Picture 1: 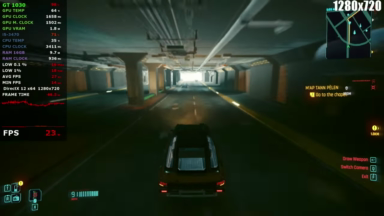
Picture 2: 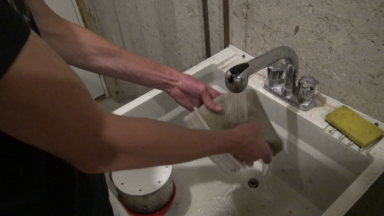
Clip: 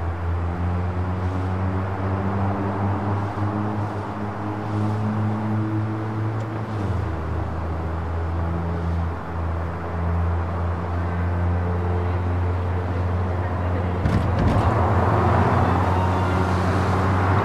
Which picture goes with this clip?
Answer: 1